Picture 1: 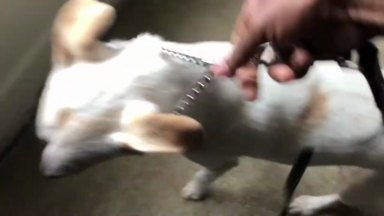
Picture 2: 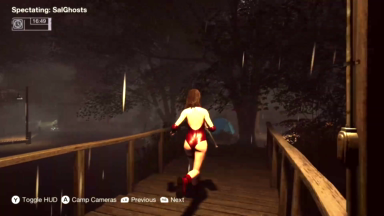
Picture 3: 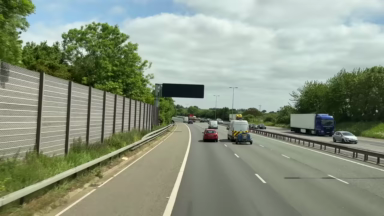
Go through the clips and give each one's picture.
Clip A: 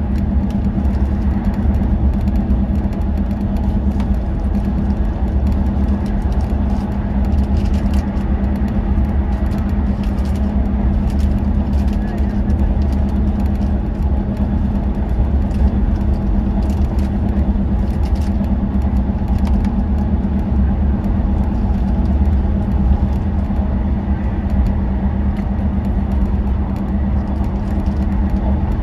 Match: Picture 3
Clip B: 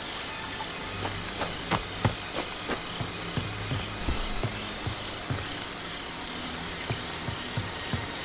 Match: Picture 2